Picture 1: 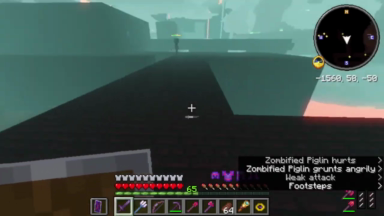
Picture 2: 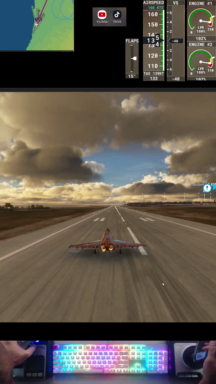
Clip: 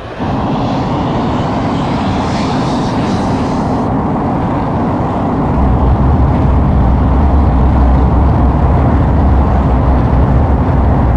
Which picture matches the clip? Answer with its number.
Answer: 2